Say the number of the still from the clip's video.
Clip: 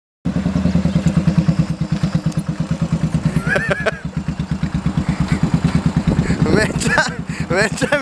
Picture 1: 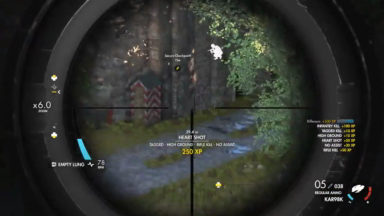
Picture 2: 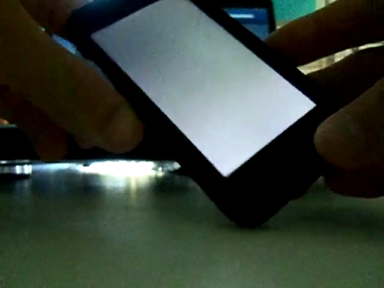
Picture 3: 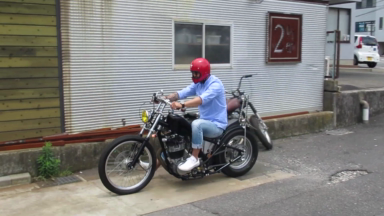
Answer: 3